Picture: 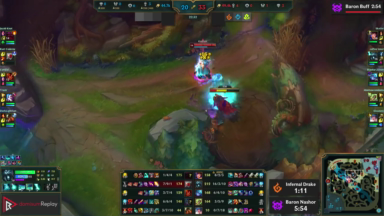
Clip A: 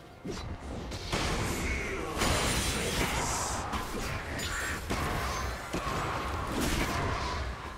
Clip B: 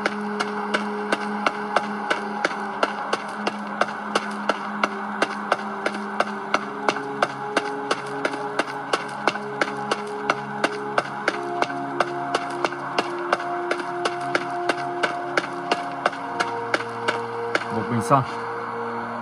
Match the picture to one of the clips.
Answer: A